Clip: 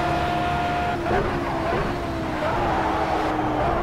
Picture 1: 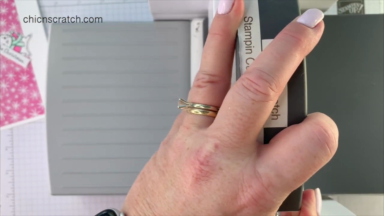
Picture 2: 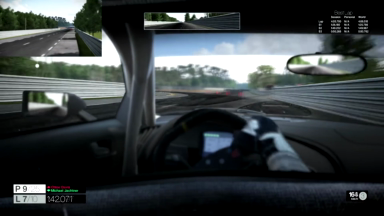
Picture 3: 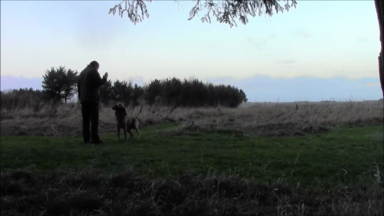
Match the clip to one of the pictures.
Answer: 2